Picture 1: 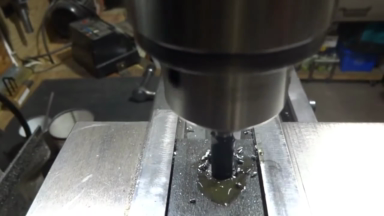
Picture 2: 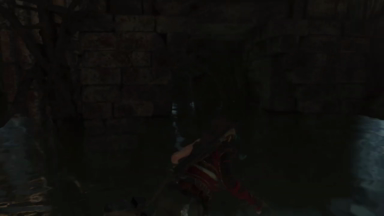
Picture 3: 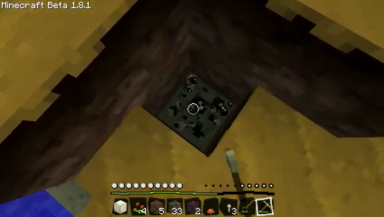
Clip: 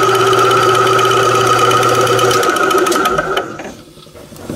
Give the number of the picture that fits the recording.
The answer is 1